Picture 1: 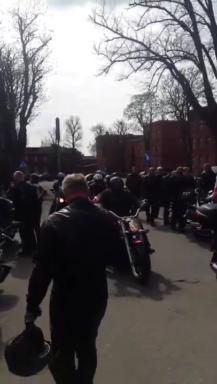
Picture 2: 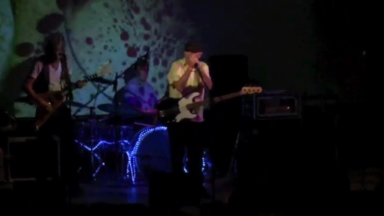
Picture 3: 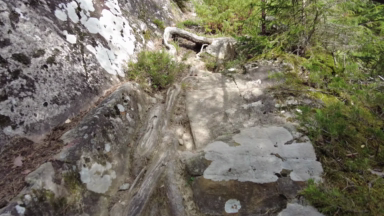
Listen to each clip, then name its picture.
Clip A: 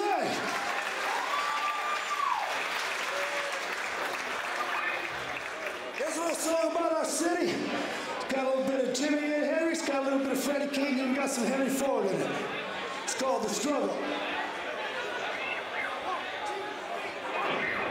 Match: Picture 2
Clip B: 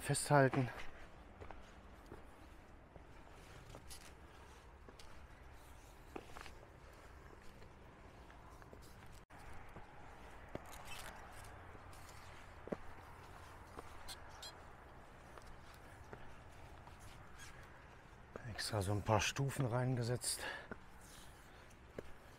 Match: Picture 3